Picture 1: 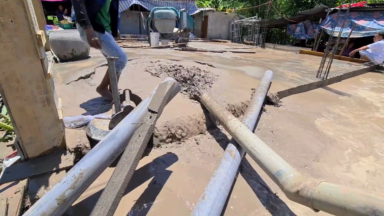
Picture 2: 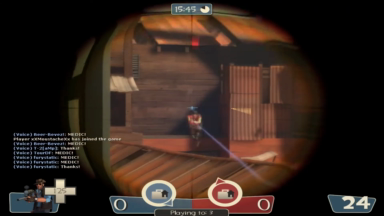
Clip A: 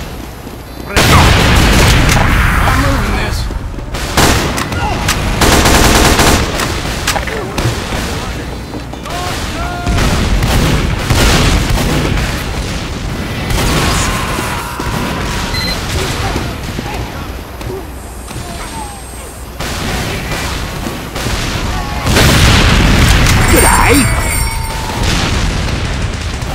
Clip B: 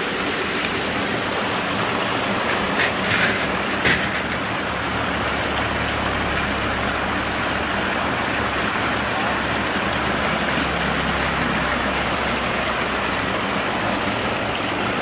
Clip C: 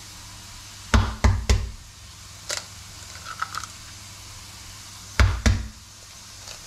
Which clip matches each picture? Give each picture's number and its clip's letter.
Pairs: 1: B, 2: A